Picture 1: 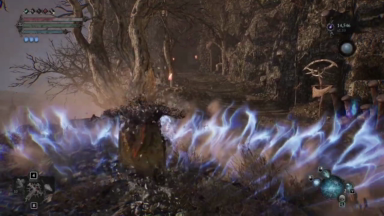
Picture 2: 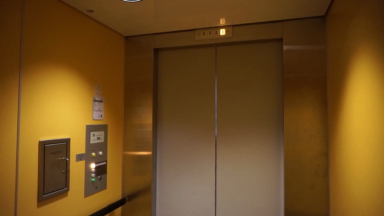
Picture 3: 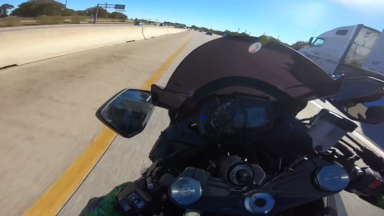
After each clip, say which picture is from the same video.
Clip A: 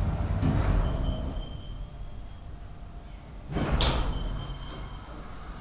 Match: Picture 2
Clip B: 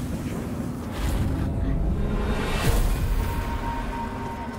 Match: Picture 1